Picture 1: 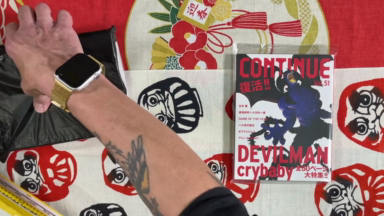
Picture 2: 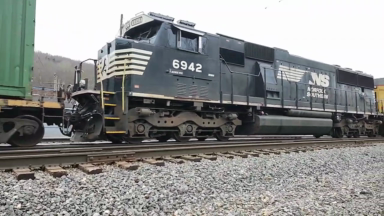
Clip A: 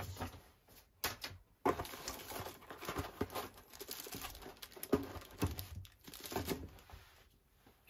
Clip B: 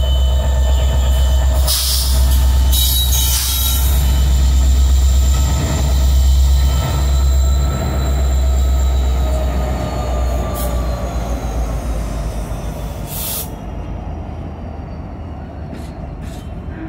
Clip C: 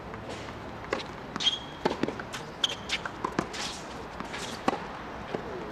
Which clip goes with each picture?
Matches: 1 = A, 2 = B